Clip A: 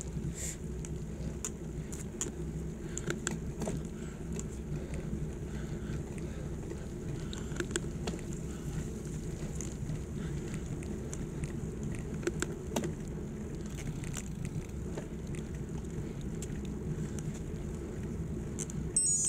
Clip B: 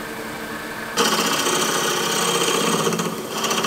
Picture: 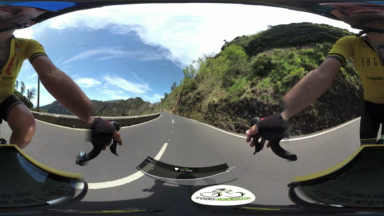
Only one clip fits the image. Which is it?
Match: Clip A